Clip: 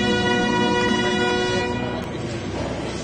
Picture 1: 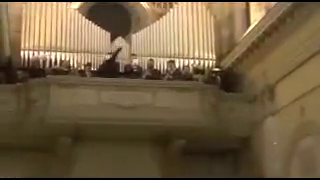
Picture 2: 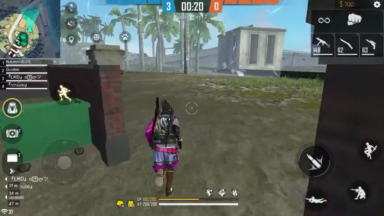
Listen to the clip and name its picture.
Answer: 1